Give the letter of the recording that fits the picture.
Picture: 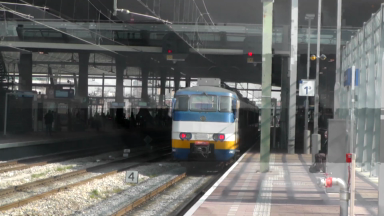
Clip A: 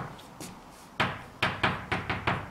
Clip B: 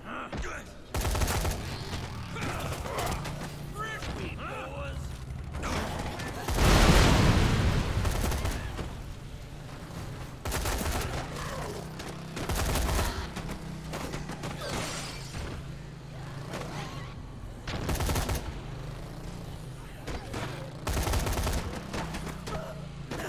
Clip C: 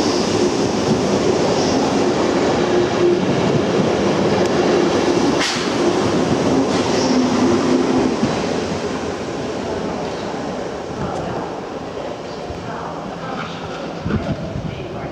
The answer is C